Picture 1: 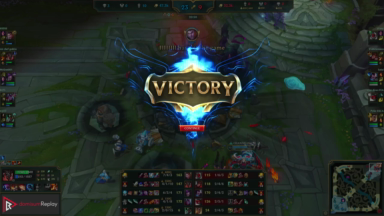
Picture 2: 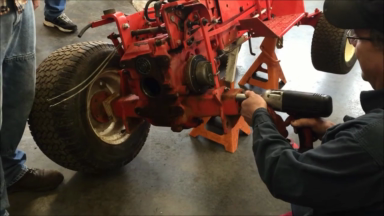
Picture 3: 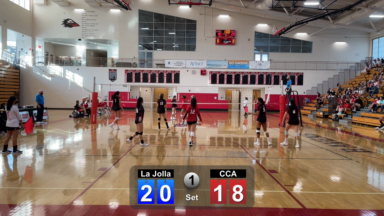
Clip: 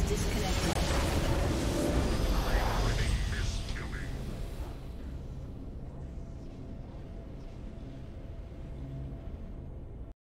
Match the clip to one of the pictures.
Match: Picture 1